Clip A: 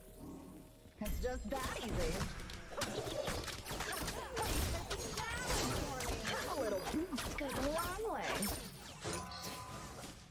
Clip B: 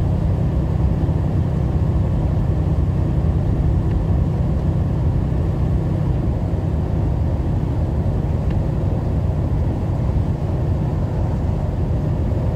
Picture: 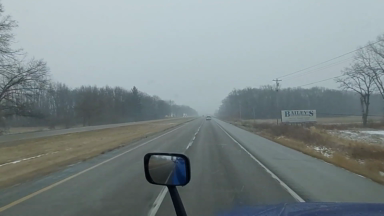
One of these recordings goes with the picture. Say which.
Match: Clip B